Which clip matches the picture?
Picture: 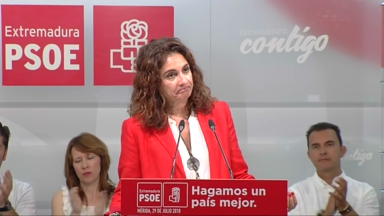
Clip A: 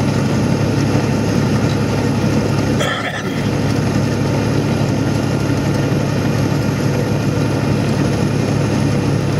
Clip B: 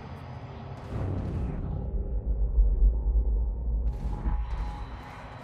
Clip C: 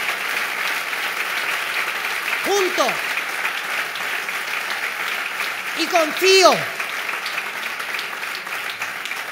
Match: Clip C